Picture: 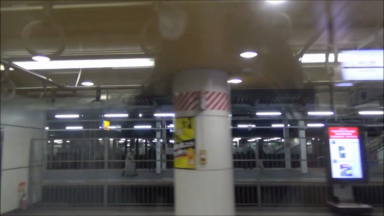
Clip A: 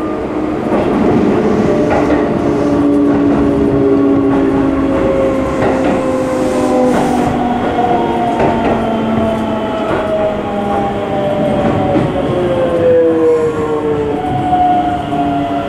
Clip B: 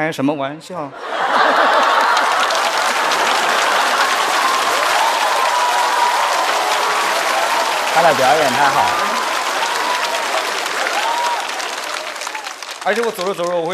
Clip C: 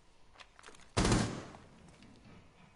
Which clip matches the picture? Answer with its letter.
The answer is A